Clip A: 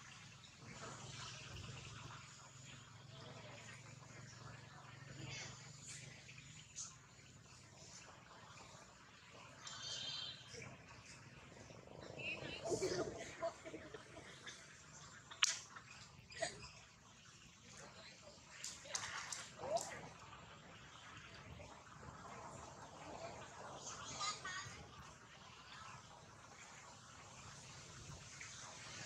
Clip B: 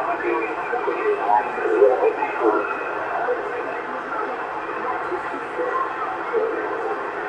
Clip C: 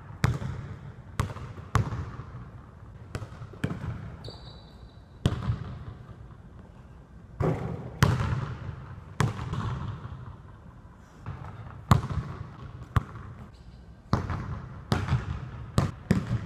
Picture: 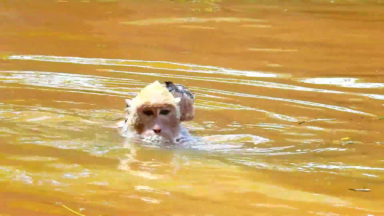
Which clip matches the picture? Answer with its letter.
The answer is A